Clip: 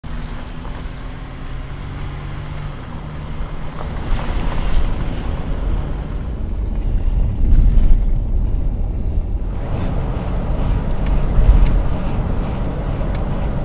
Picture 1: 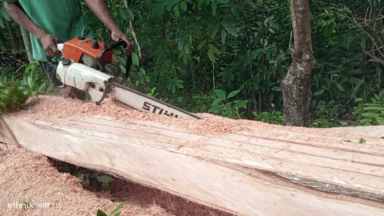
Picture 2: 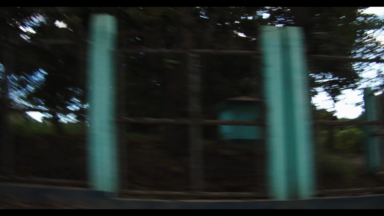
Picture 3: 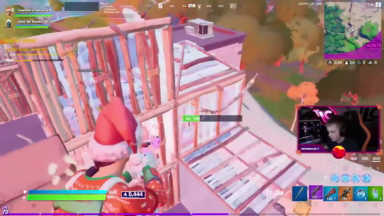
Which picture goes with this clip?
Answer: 2